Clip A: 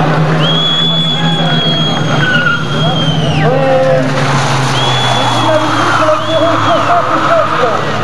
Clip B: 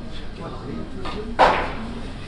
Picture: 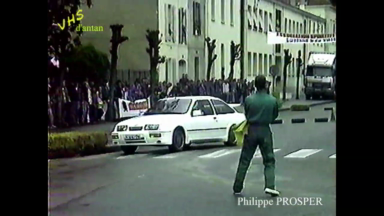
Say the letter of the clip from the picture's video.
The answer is A